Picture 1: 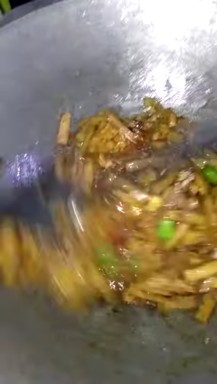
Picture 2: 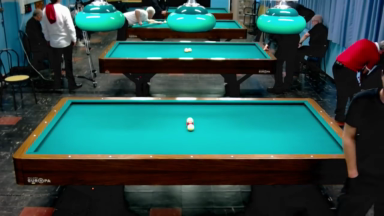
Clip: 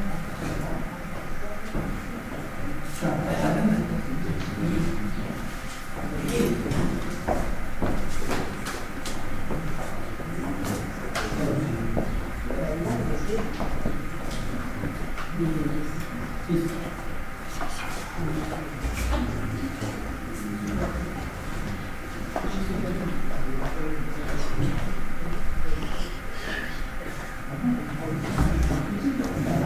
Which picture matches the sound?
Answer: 2